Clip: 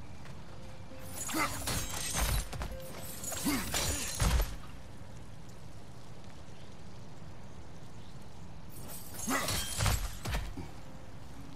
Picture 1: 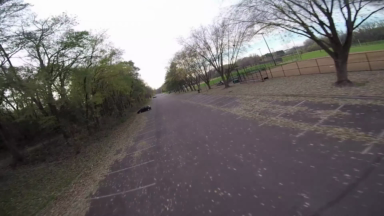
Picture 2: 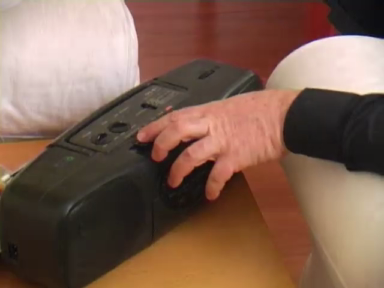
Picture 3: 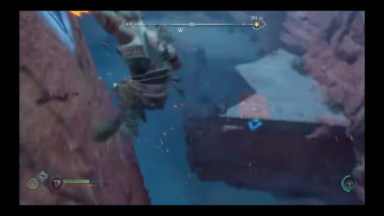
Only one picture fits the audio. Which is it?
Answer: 3